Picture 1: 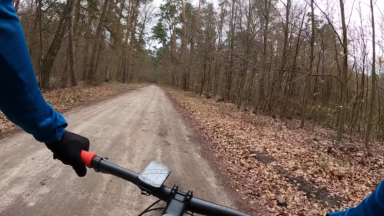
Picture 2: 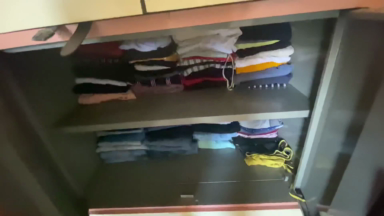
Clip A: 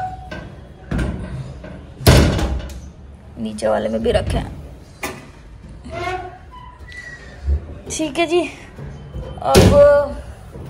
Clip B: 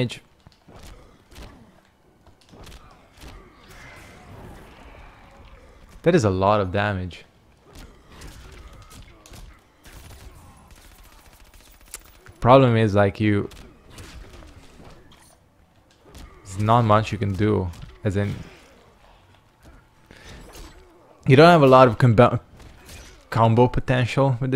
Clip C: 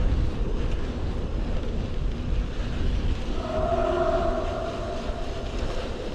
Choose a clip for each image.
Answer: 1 C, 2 A